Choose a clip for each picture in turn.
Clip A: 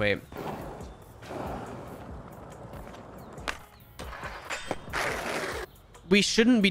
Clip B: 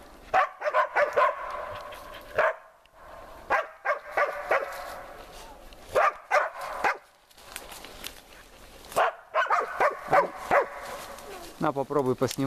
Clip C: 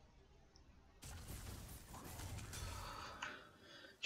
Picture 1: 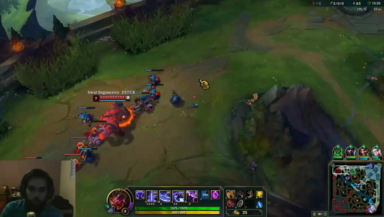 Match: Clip C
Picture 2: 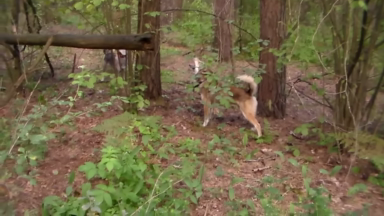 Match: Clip B